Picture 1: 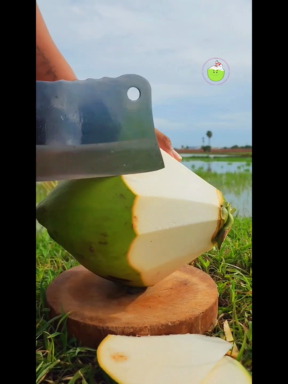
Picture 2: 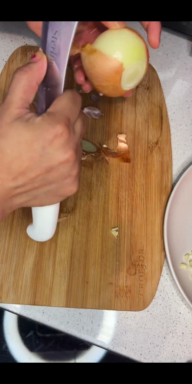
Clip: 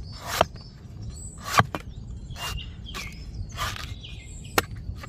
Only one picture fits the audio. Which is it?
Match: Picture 1